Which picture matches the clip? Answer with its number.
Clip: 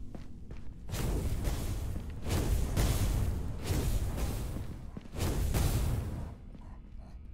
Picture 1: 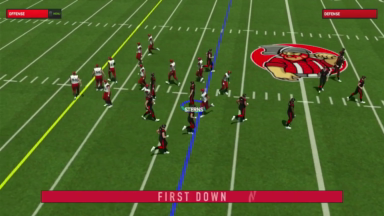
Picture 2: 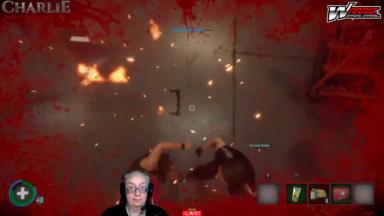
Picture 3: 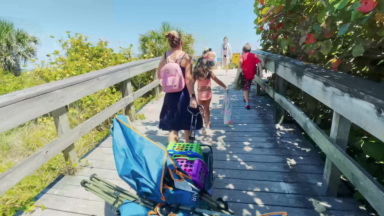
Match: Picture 2